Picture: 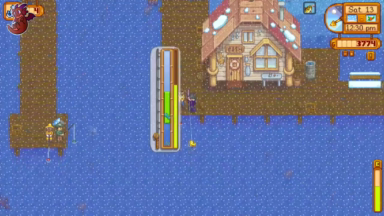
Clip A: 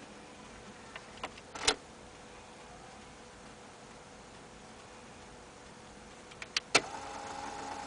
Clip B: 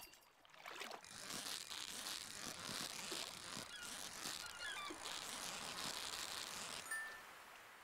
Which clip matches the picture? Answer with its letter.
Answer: B